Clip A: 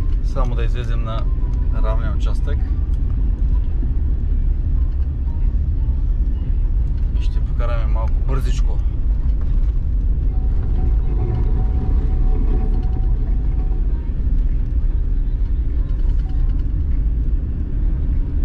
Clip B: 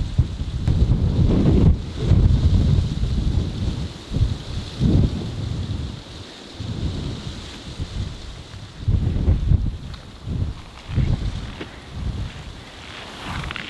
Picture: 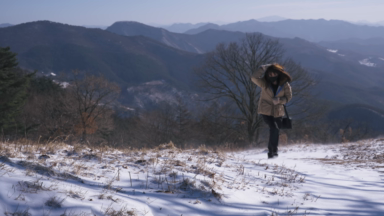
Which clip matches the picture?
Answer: B